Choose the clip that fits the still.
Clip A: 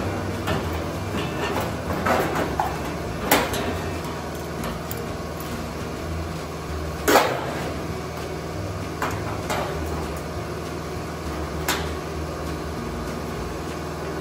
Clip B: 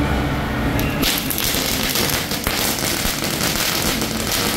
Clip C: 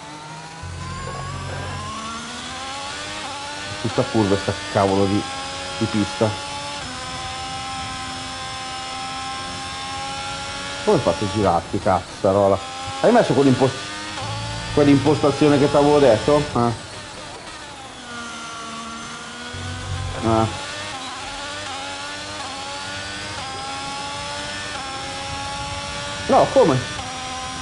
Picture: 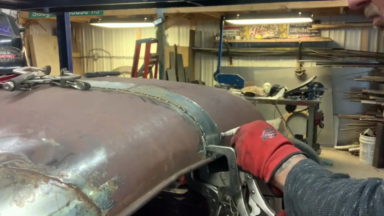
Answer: A